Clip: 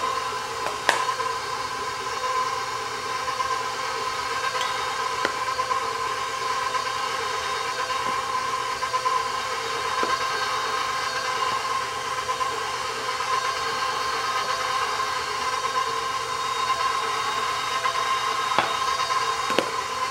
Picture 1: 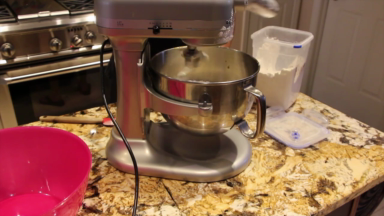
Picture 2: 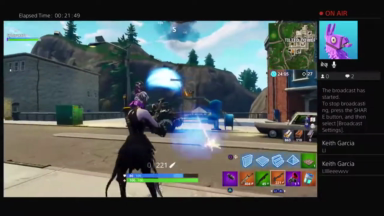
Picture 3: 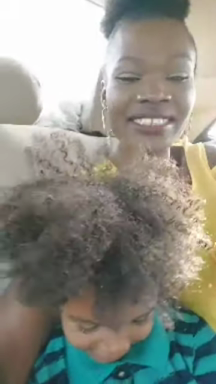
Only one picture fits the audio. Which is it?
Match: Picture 1